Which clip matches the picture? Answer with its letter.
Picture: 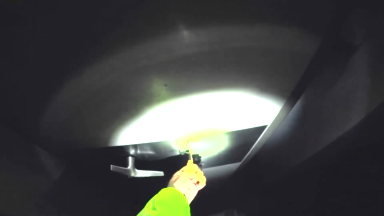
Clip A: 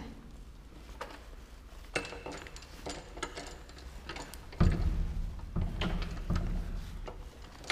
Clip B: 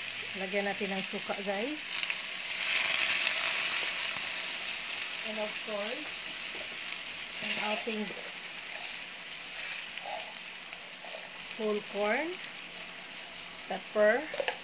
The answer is A